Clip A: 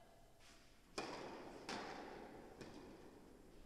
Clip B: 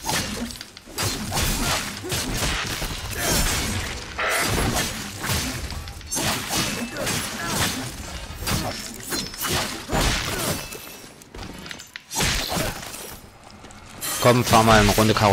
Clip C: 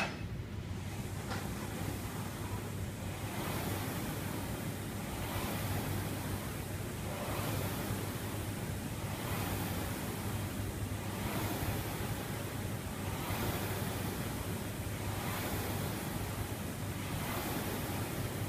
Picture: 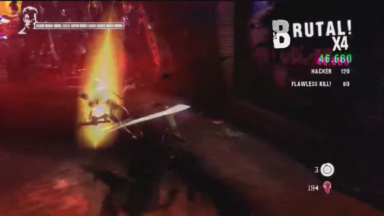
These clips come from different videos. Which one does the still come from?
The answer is B